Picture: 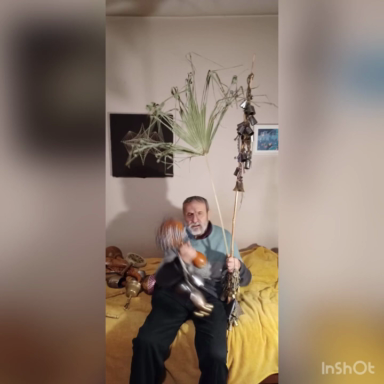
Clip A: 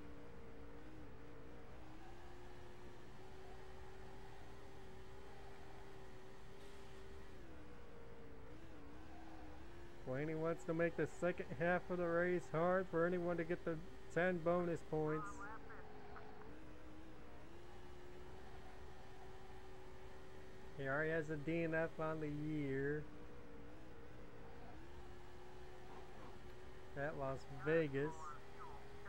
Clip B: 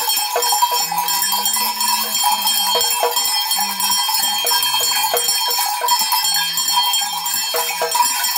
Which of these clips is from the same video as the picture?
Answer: B